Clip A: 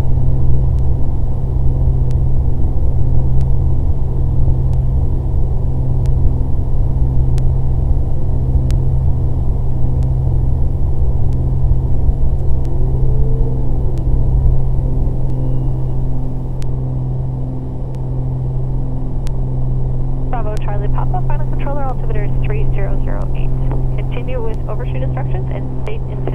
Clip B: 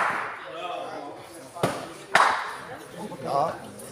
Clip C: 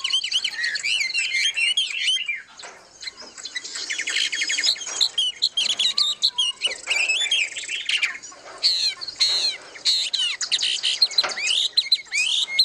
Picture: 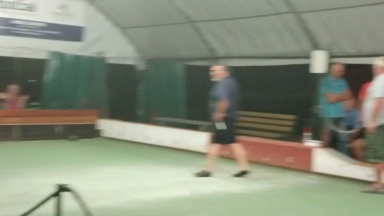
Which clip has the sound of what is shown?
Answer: B